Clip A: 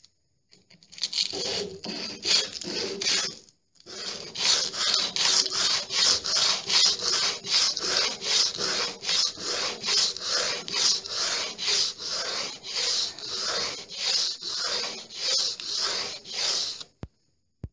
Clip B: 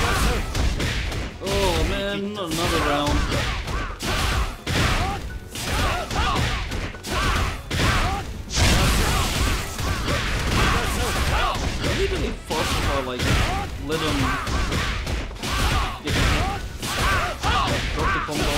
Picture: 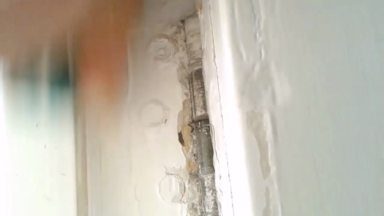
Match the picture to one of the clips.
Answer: A